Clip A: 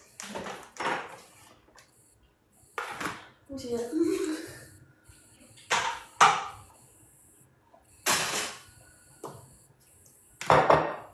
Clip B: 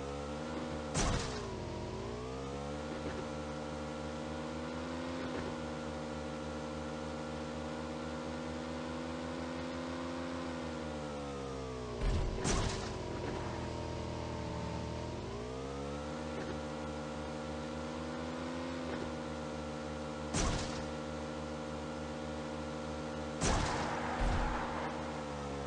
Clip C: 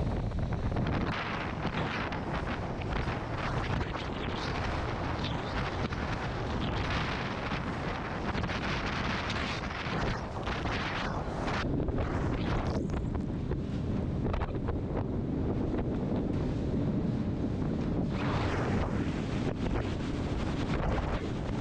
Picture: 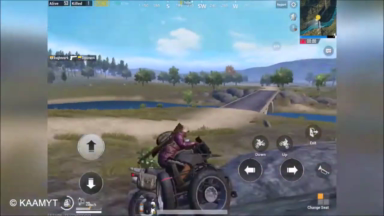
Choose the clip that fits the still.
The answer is B